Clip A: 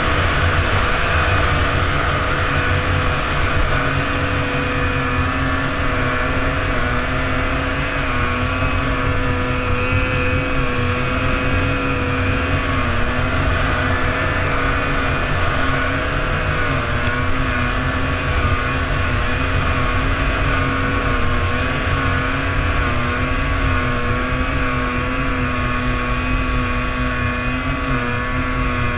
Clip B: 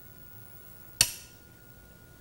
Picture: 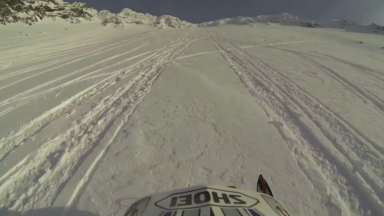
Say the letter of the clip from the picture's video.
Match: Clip A